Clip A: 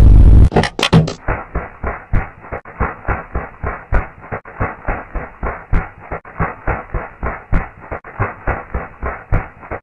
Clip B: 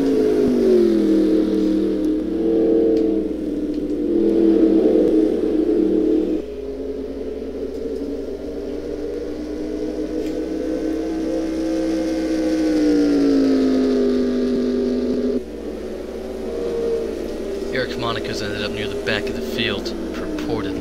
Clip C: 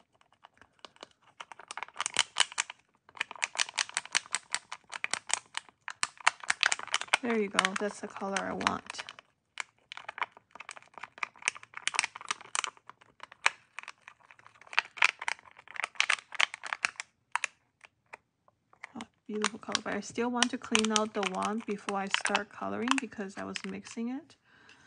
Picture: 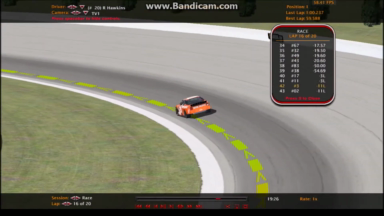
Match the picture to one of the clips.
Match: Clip B